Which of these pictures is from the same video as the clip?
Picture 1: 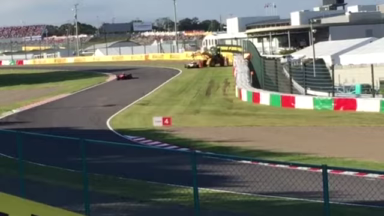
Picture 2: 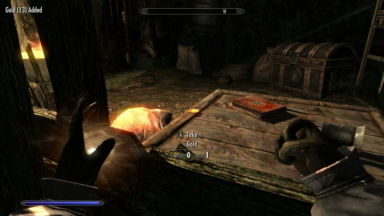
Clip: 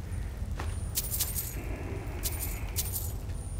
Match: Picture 2